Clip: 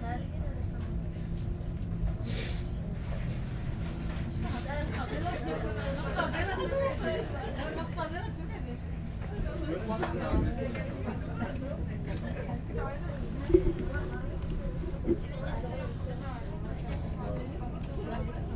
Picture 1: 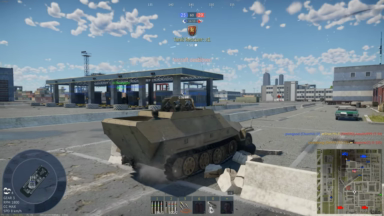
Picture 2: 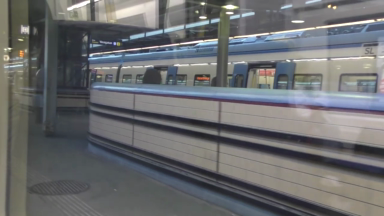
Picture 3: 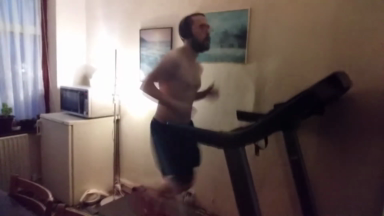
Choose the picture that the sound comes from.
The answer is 2